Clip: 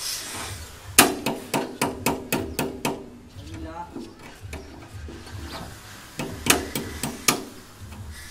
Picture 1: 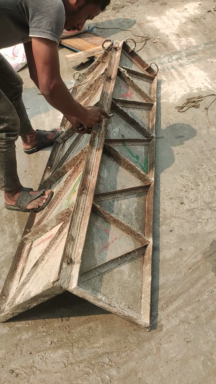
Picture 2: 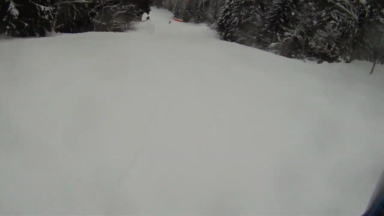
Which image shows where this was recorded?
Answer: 1